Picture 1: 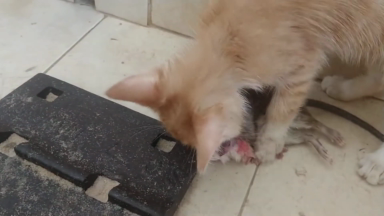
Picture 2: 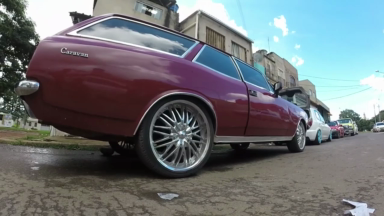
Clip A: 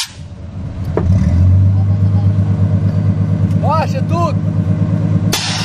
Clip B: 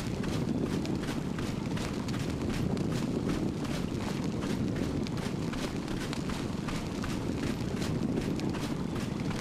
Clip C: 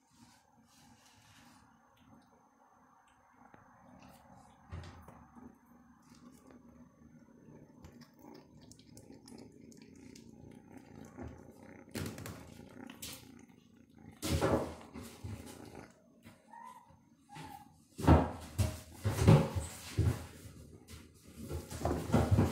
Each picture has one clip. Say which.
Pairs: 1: C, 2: A